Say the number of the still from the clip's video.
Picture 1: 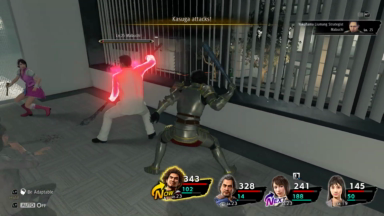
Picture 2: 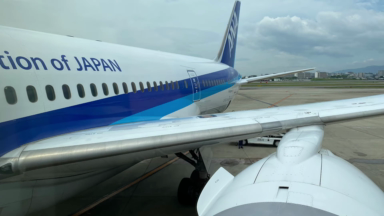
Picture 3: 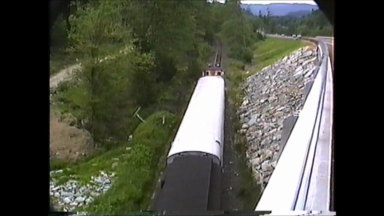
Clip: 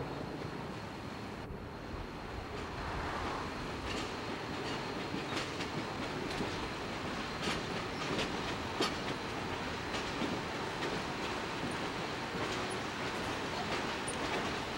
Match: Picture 3